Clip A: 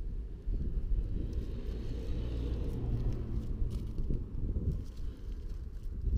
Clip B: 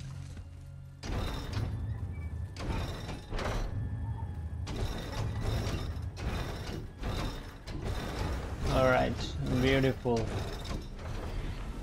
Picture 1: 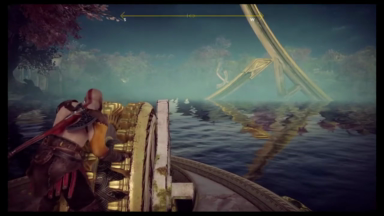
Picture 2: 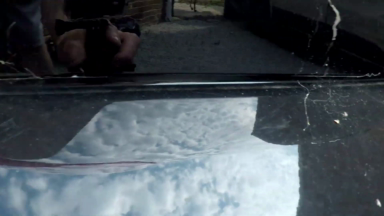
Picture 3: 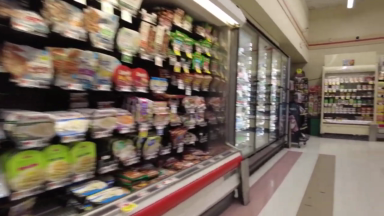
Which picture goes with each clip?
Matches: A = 2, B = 1